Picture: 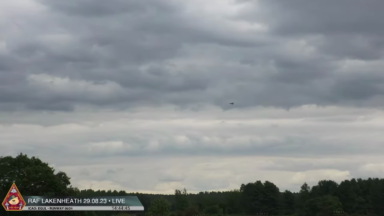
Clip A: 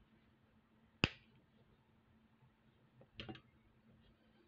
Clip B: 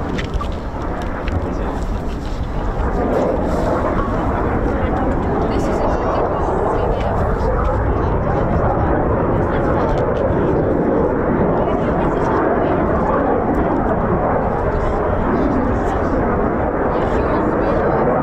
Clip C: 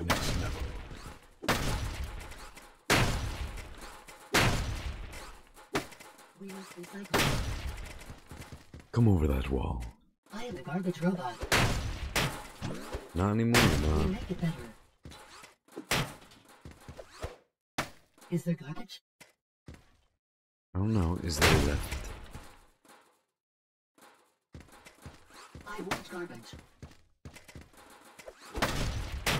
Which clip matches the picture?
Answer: B